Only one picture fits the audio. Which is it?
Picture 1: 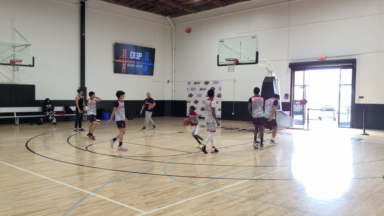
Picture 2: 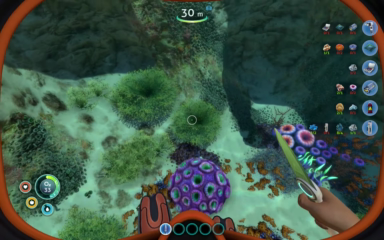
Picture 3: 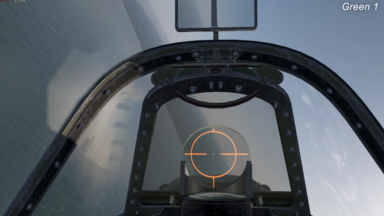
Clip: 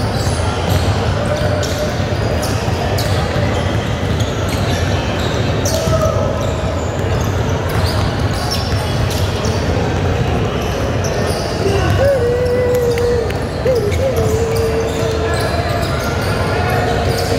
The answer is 1